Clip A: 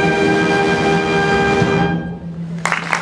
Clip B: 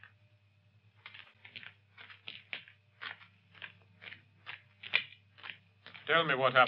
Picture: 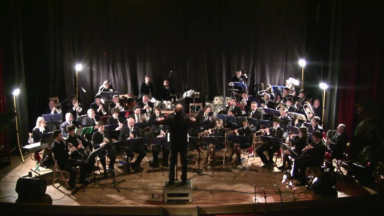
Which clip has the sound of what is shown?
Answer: A